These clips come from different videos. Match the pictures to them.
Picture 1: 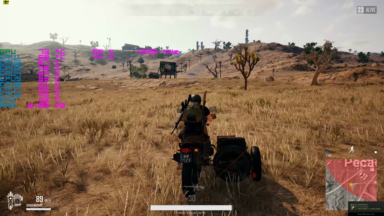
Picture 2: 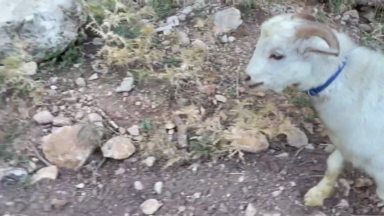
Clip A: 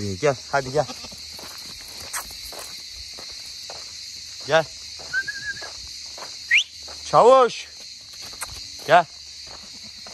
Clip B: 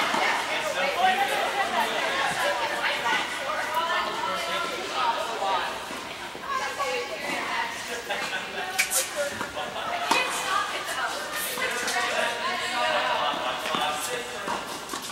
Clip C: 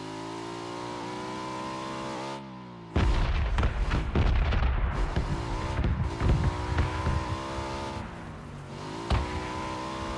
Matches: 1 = C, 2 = A